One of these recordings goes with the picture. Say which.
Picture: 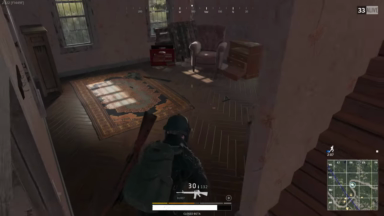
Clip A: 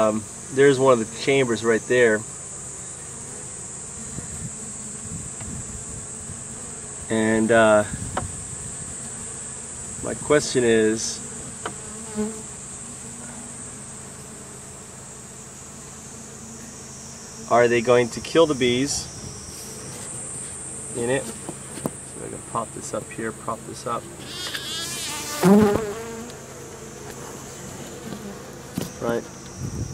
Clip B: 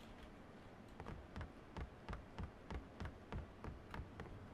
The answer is B